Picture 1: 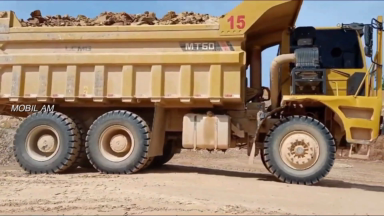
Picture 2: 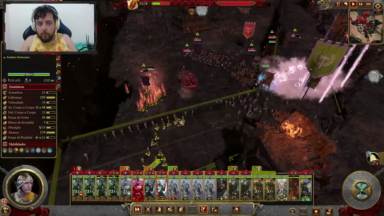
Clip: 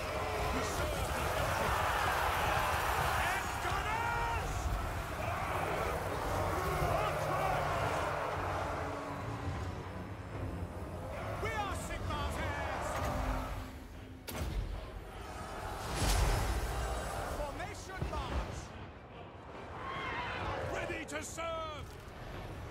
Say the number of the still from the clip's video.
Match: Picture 2